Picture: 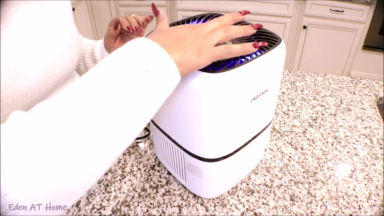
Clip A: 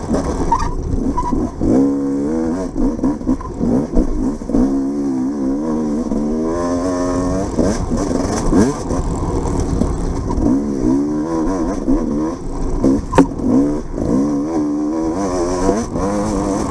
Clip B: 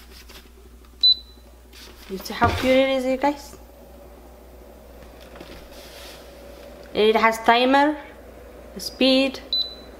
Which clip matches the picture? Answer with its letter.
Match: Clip B